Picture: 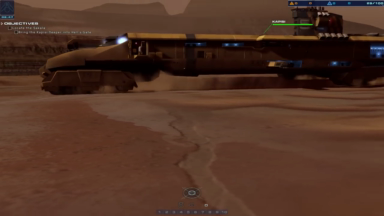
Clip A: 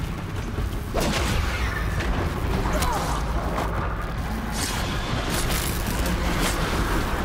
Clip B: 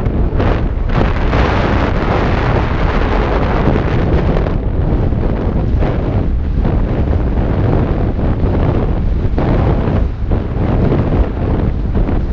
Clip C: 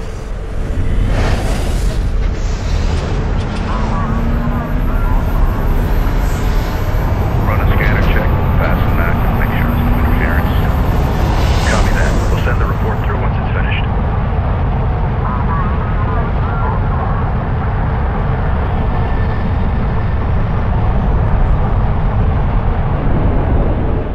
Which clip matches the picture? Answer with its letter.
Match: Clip C